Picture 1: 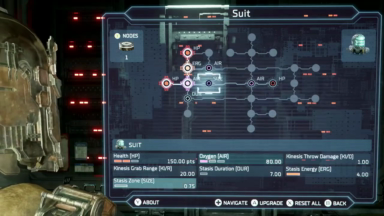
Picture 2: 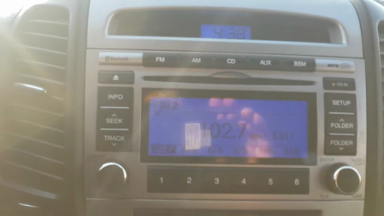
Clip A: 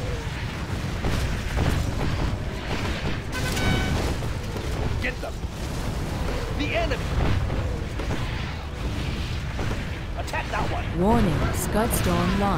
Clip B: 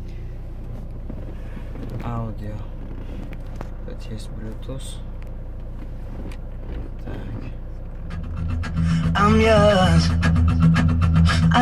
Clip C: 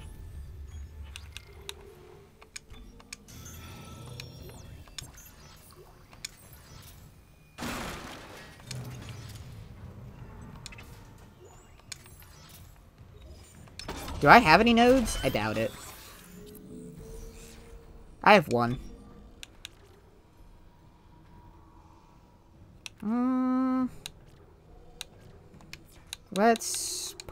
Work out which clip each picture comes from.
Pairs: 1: C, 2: B